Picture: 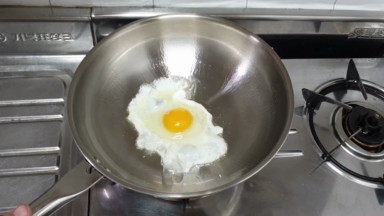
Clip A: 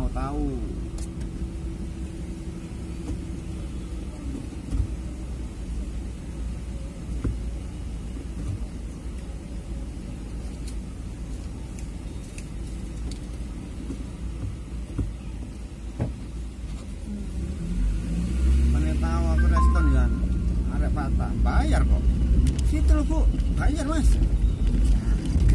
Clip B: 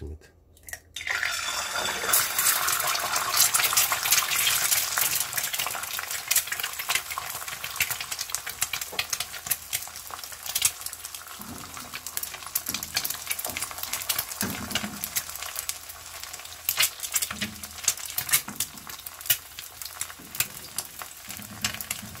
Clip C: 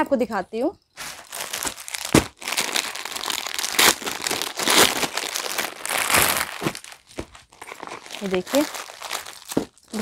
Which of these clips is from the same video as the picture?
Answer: B